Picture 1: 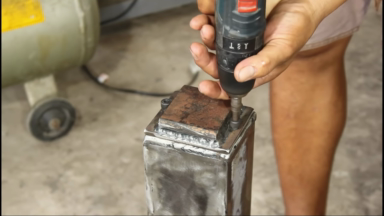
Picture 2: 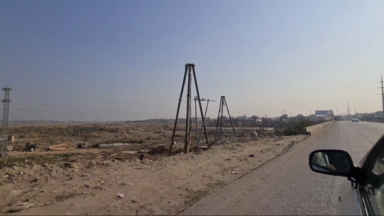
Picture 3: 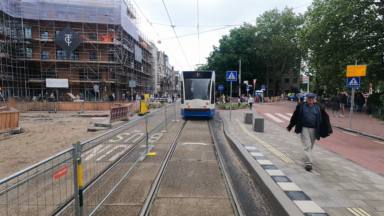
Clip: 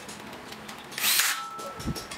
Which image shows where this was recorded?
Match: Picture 1